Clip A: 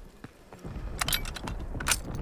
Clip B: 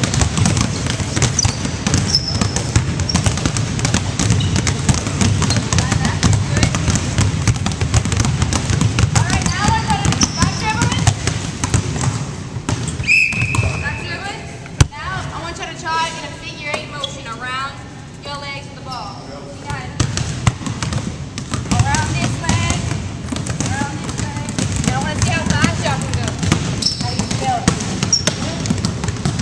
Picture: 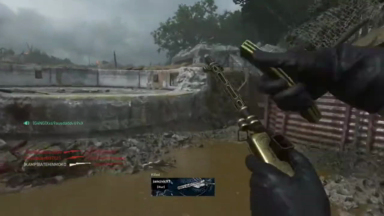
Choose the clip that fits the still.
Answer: A